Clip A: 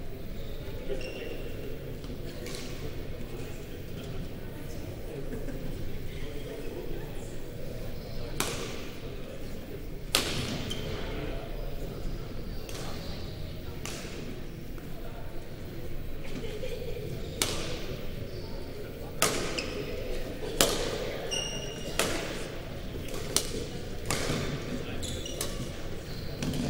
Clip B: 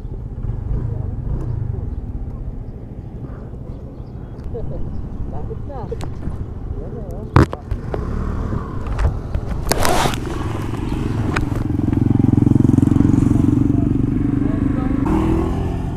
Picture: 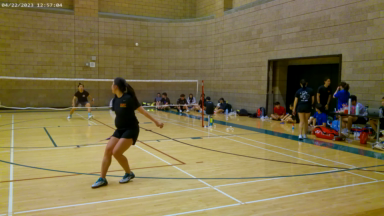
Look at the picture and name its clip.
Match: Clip A